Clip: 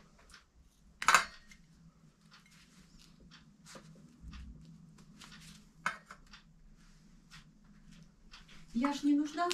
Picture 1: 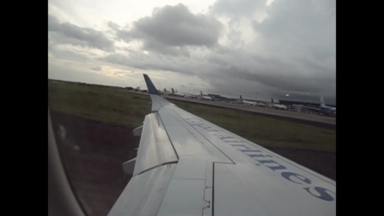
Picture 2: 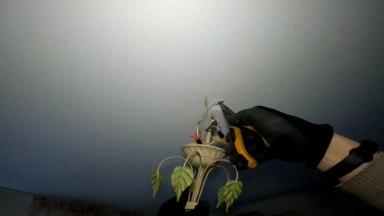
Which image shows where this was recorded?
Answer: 2